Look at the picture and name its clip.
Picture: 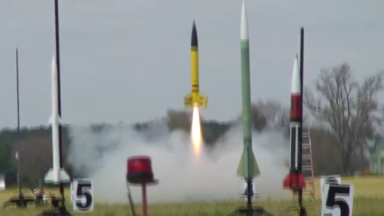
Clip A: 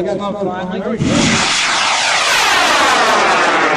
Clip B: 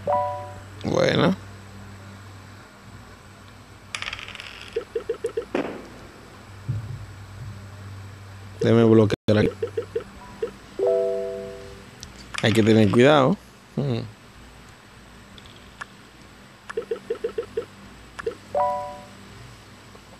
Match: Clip A